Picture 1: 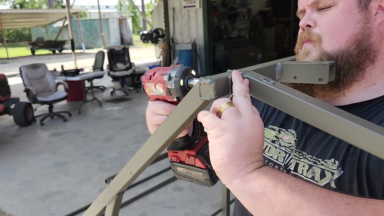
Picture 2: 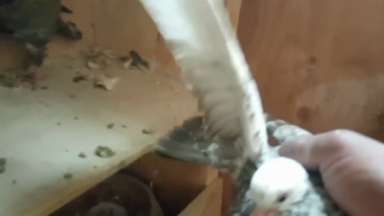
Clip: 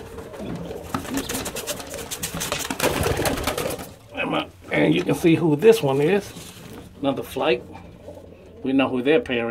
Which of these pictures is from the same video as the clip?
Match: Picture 2